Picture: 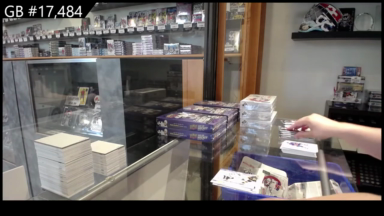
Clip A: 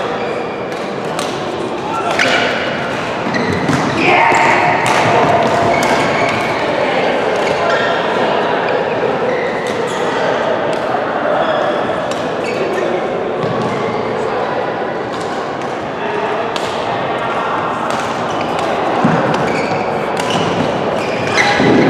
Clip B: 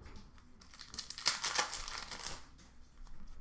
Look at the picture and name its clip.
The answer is B